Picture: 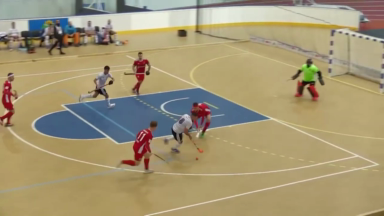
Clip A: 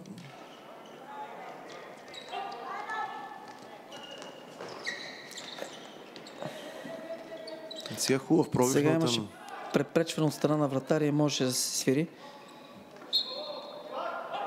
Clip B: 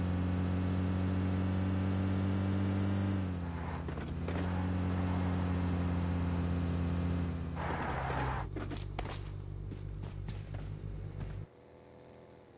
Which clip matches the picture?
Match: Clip A